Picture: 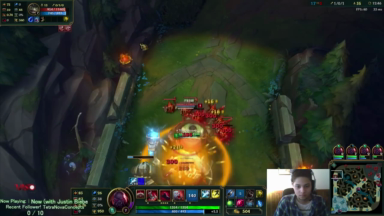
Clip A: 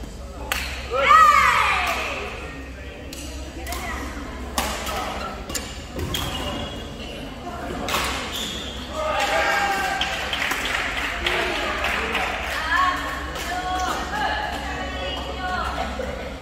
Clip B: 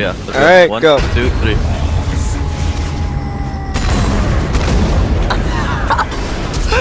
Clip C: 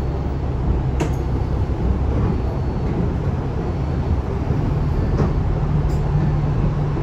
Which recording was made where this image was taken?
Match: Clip B